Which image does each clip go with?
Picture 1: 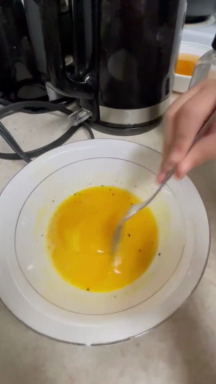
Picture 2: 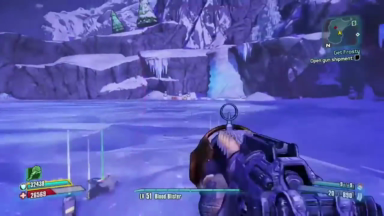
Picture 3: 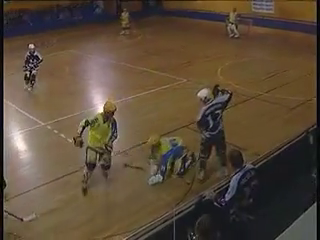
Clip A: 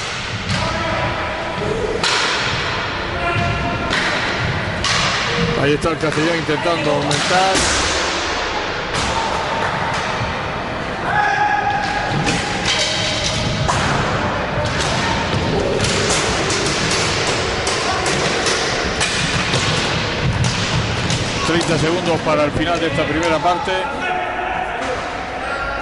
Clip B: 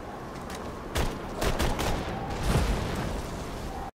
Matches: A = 3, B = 2